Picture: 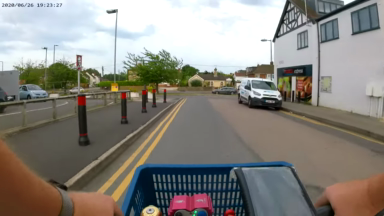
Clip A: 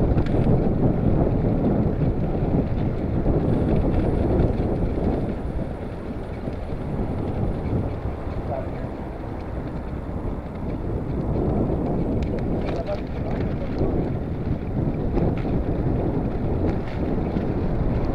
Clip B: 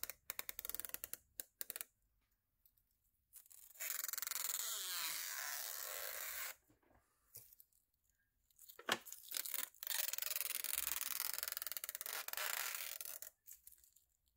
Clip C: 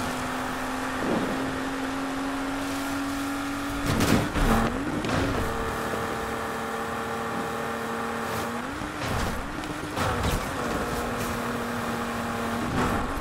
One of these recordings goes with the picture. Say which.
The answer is A